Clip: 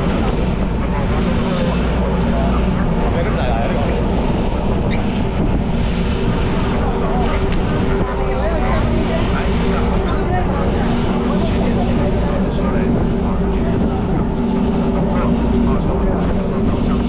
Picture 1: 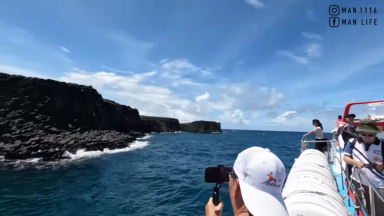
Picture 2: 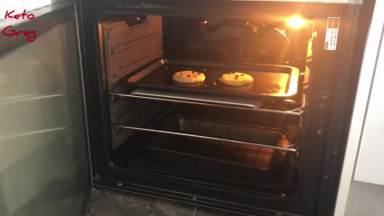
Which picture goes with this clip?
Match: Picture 1